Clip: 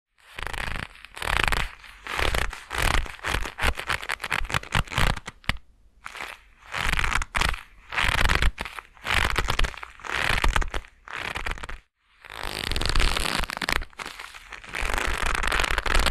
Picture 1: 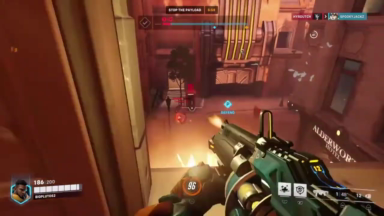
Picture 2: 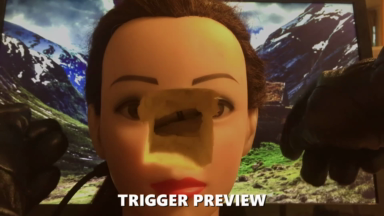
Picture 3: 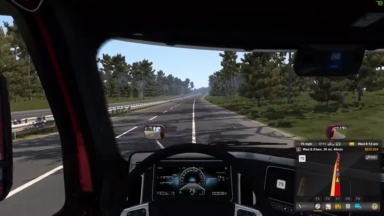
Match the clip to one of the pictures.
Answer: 2